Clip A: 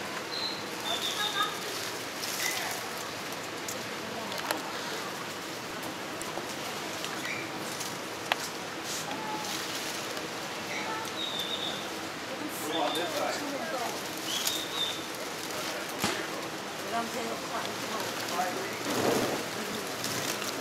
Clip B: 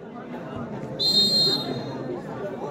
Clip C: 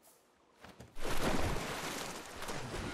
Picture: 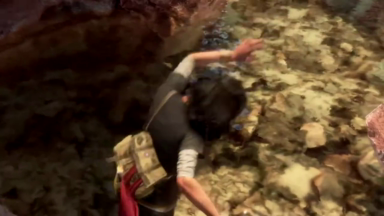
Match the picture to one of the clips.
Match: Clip C